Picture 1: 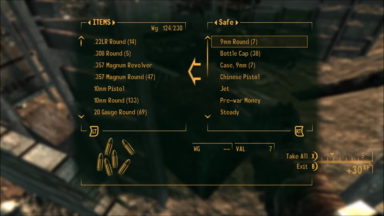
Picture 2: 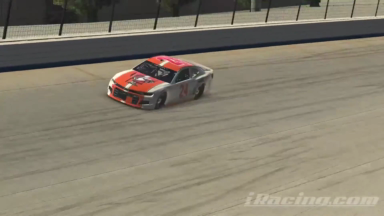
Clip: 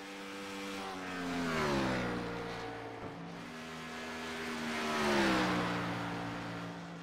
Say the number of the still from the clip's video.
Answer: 2